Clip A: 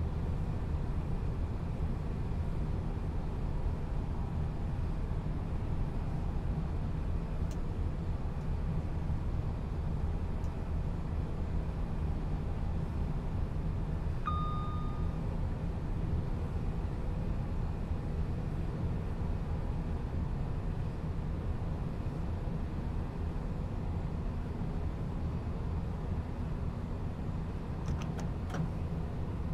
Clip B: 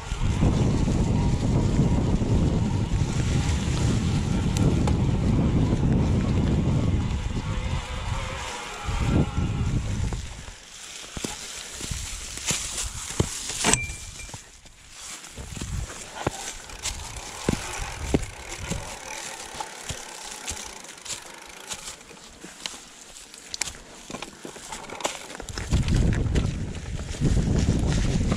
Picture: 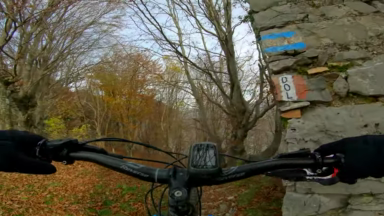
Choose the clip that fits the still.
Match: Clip B